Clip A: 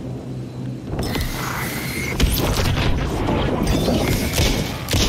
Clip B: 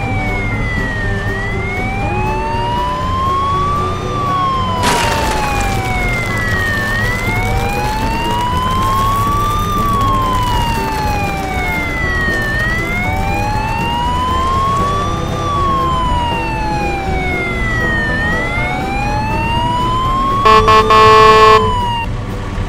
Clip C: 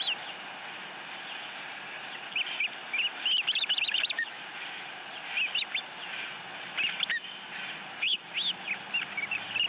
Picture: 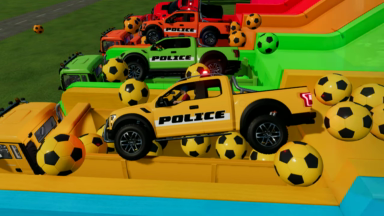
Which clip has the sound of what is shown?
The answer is B